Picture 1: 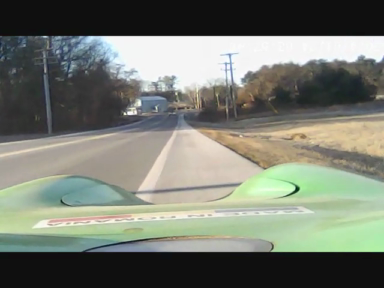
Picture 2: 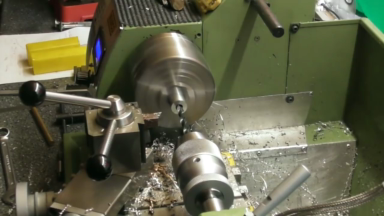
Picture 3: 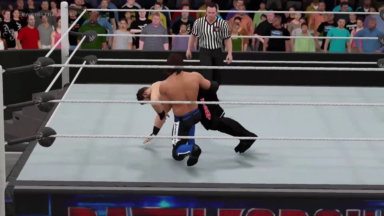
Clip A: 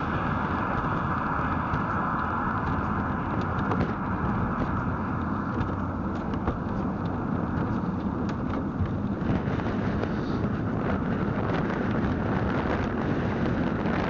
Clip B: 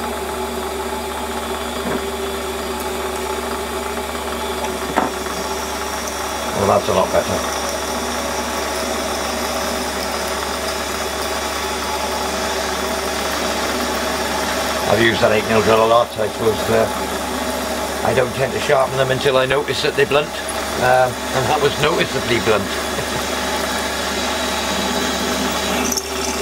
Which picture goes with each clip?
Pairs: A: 1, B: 2